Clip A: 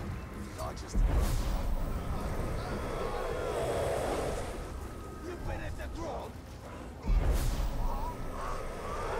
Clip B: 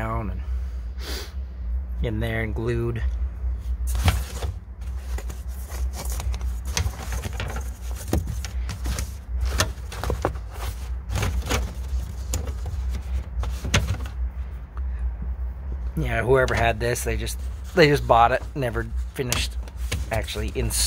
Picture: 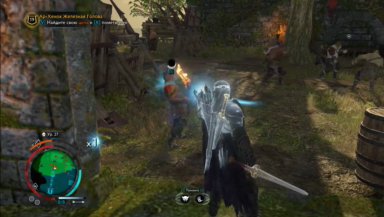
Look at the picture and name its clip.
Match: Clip A